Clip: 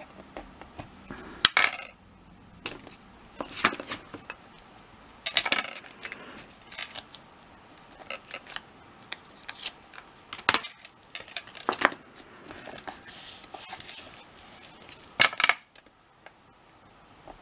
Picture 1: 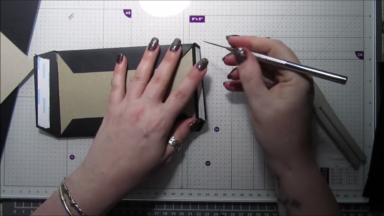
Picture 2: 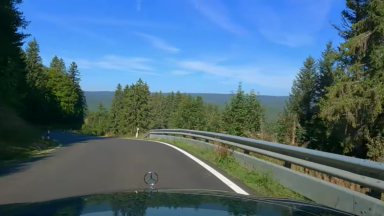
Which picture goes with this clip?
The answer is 1